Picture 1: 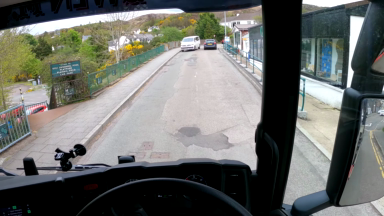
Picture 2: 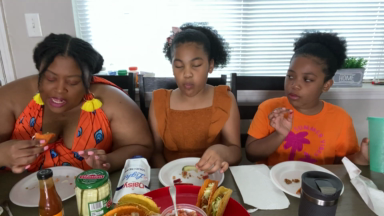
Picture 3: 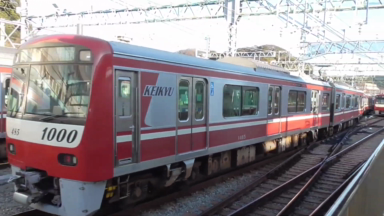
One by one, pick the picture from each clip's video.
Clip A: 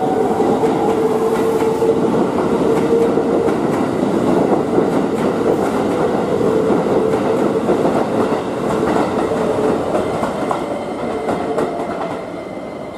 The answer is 3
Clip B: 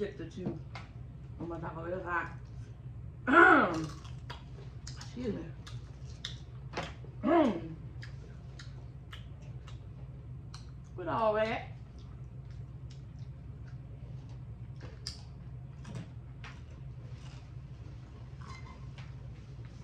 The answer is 2